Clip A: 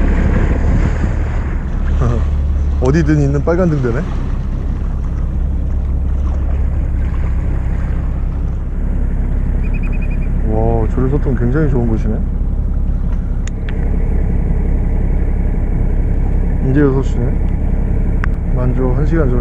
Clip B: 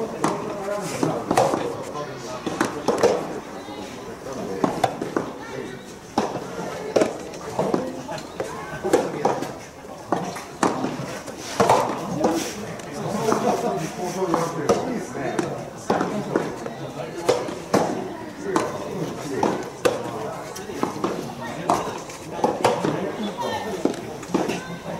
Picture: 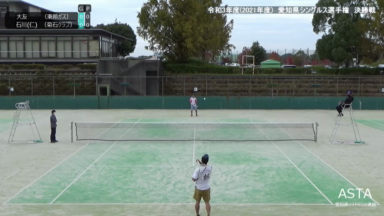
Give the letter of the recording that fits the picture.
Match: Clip B